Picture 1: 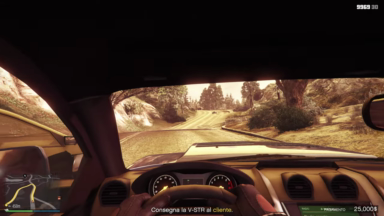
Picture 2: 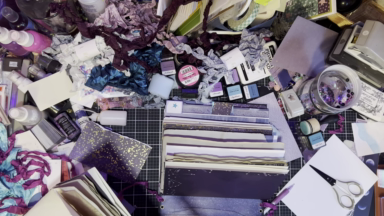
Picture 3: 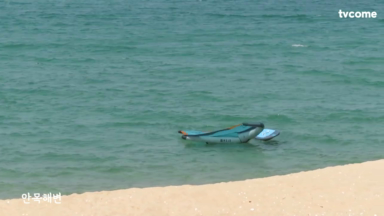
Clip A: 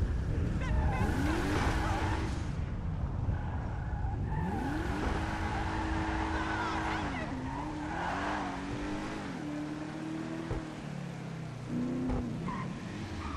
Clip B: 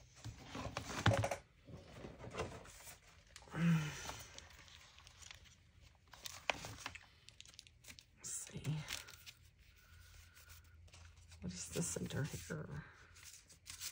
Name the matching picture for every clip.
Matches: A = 1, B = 2